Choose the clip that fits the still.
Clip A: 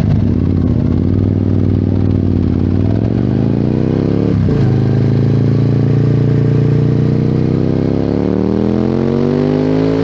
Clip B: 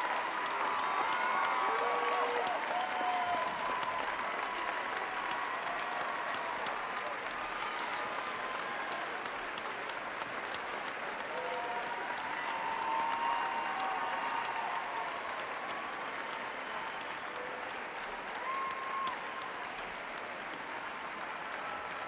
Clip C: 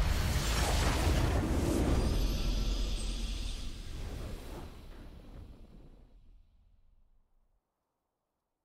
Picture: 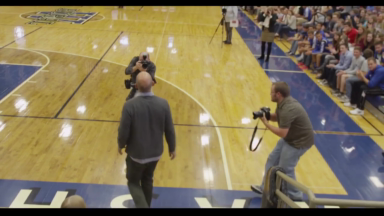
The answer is B